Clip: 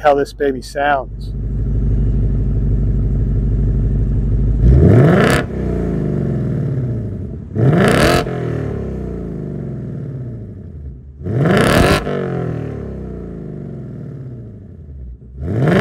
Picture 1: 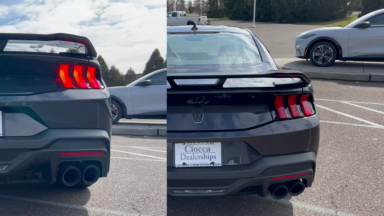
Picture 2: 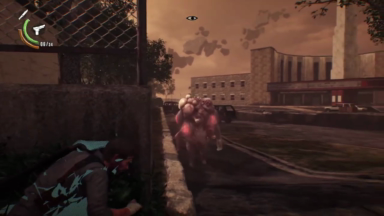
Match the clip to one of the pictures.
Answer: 1